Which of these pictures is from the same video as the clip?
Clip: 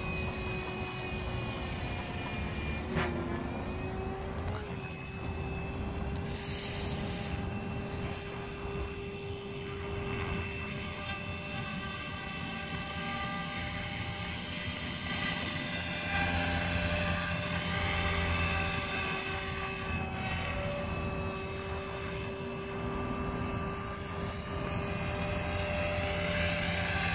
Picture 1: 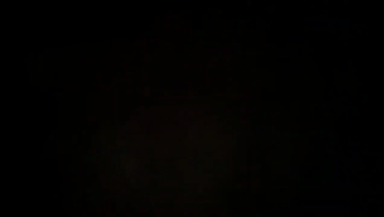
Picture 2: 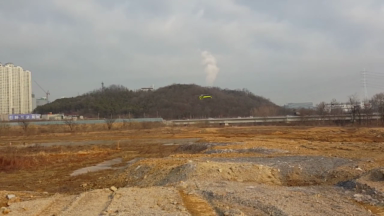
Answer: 2